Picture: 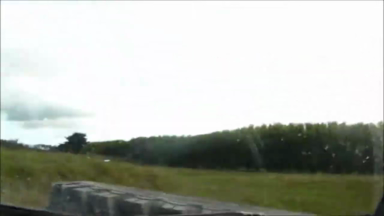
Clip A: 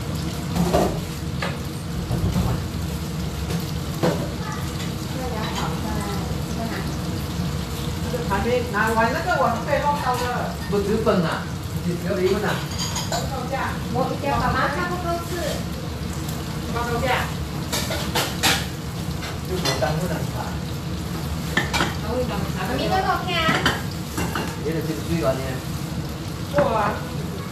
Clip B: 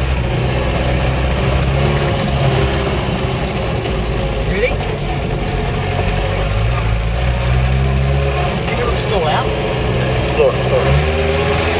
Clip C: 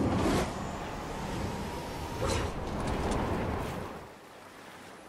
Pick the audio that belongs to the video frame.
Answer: B